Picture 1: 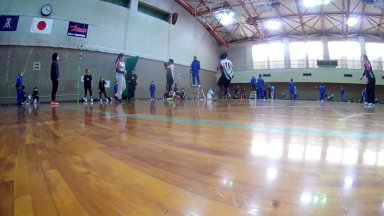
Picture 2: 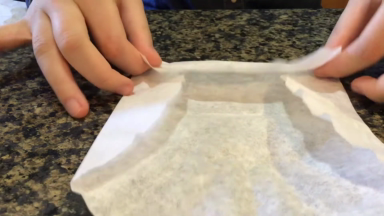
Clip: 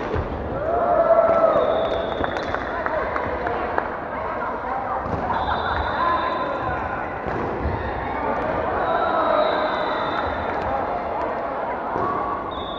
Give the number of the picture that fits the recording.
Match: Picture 1